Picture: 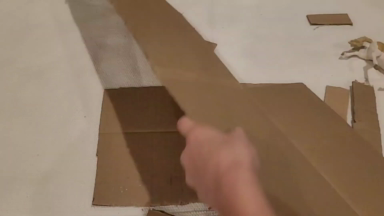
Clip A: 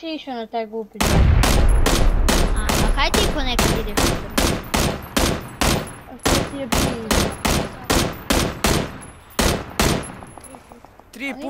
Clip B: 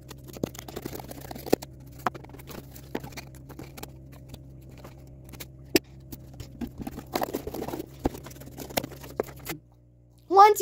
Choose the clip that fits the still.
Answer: B